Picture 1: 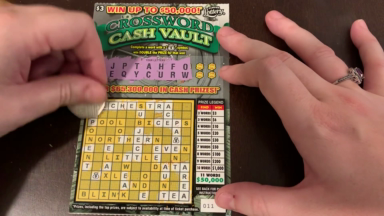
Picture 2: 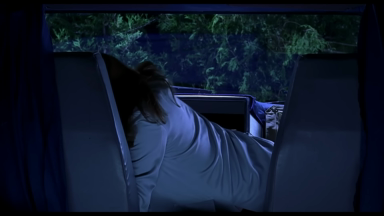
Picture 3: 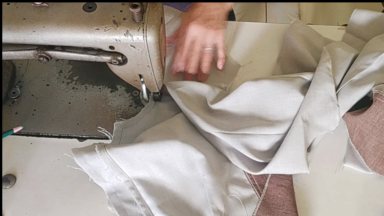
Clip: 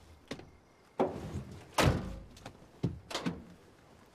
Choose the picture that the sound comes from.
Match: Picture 2